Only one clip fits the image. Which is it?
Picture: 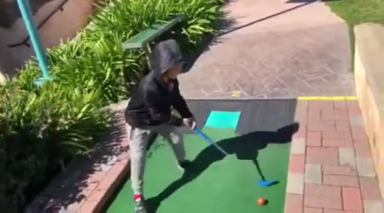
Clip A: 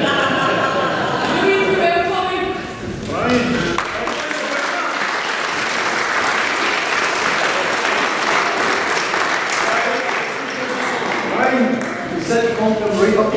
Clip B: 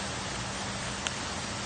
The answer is B